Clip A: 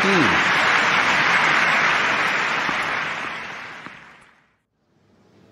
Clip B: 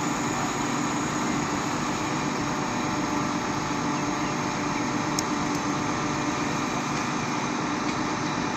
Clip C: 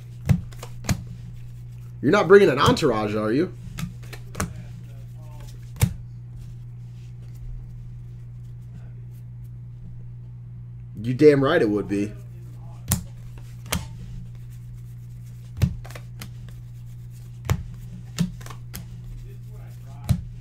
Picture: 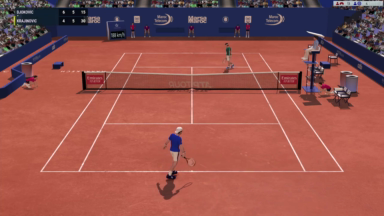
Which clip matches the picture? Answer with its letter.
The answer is A